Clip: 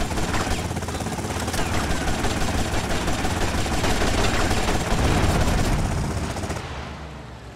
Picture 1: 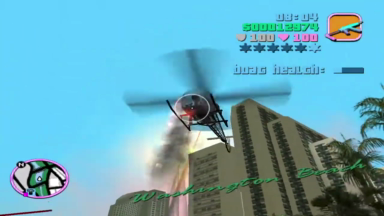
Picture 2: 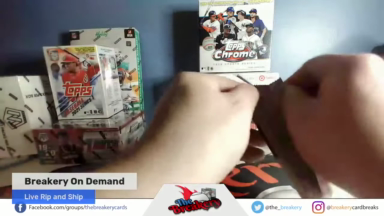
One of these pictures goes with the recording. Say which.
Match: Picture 1